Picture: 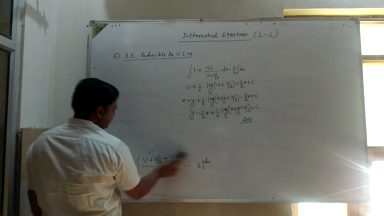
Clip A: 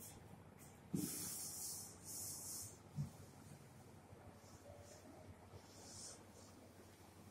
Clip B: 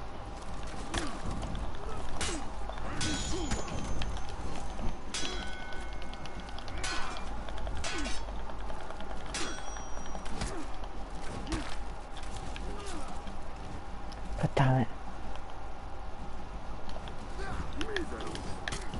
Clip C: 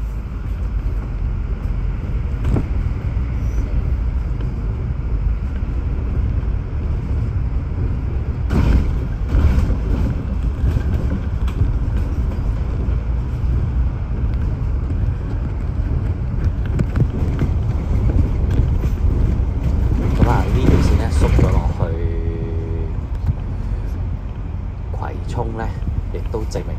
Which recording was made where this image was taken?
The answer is A